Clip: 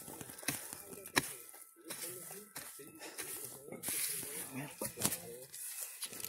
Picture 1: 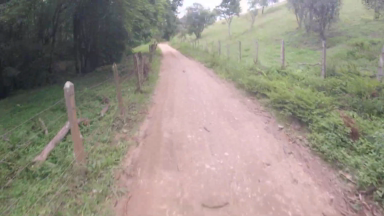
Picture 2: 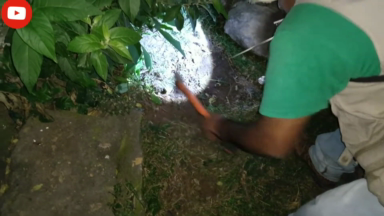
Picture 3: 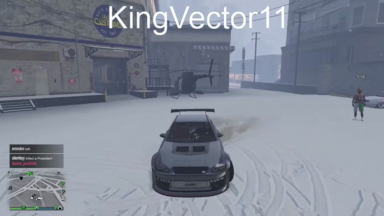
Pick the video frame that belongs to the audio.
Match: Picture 2